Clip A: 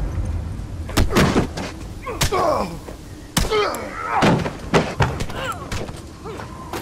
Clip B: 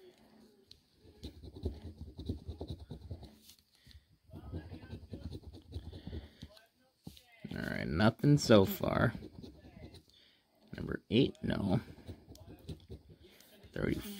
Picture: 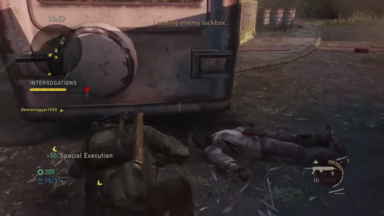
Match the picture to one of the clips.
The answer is A